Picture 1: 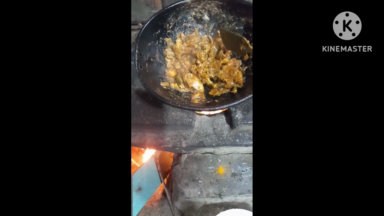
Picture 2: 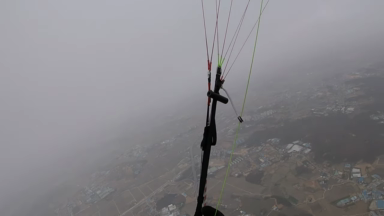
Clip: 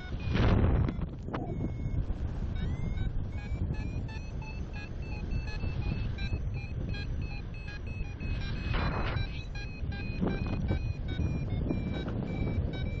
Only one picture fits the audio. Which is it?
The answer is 2